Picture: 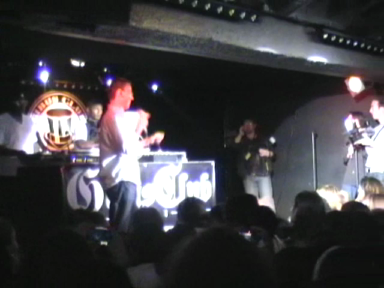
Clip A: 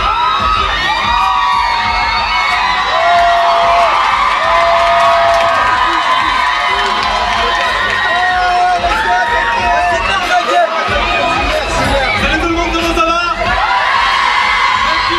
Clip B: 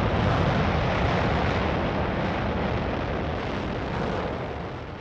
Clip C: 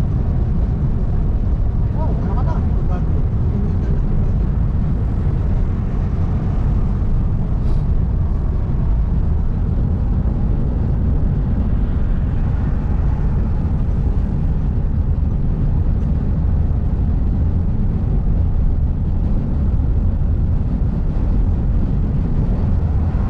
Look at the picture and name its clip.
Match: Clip A